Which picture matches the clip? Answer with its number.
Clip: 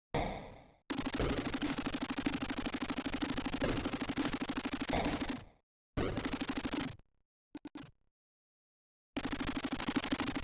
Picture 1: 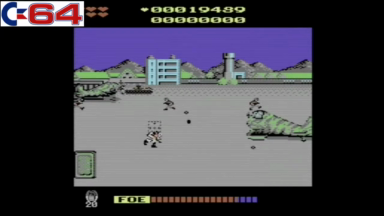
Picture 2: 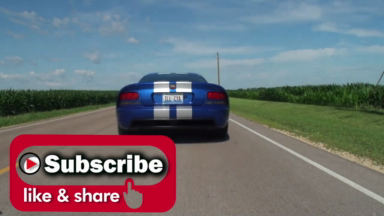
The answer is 1